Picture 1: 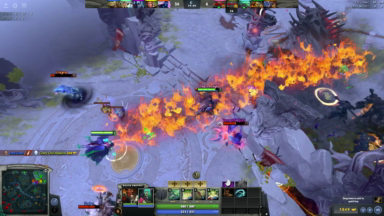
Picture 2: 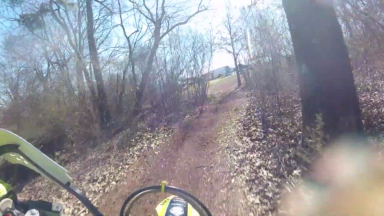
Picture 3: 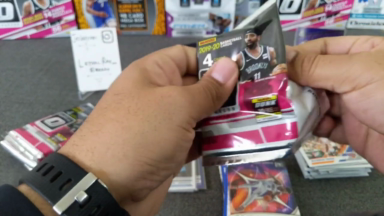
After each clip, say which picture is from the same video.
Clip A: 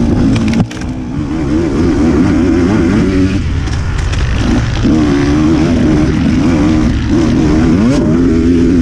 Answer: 2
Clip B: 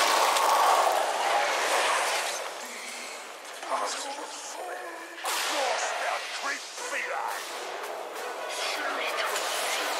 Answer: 1